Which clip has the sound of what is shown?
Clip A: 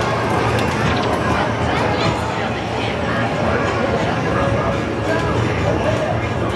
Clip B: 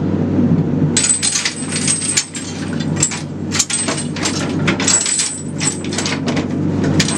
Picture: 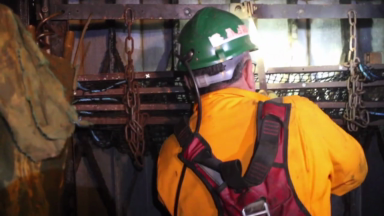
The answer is B